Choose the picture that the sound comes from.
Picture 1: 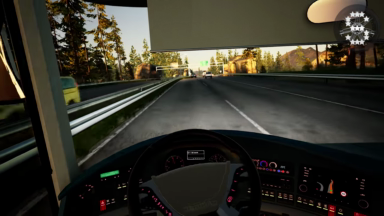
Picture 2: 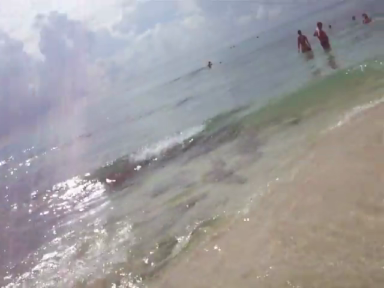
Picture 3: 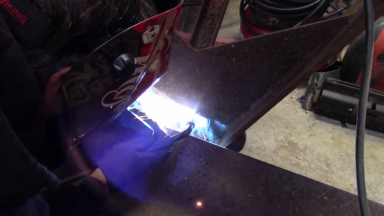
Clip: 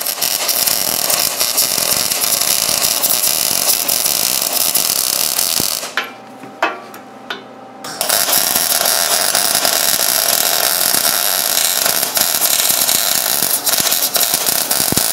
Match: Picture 3